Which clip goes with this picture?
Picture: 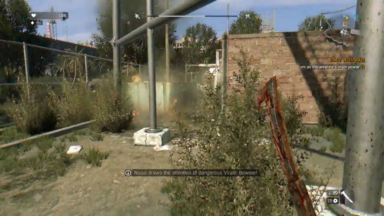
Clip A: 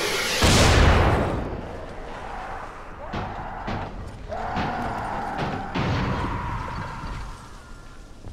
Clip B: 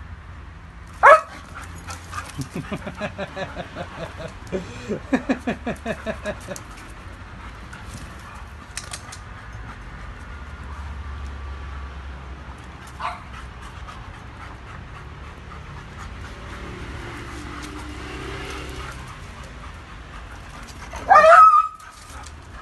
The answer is A